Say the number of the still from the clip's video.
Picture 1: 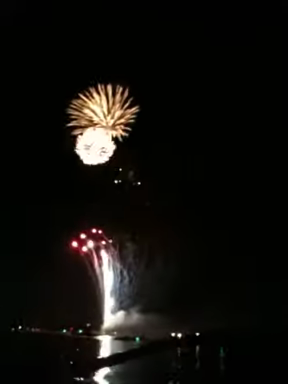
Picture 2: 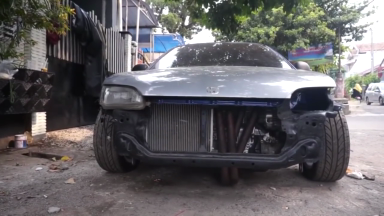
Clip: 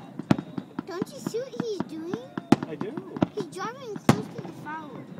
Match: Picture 1